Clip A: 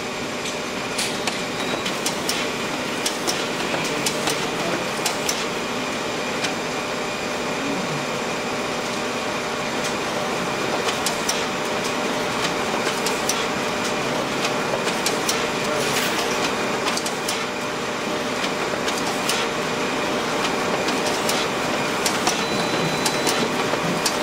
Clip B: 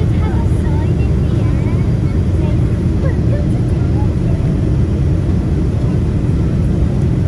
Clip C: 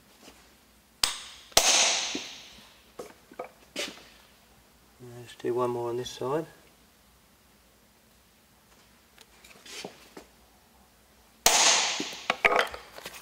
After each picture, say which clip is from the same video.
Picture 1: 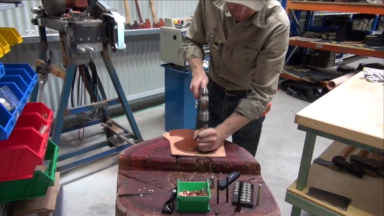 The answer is C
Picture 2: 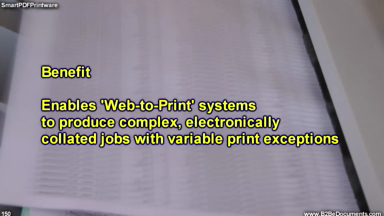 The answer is A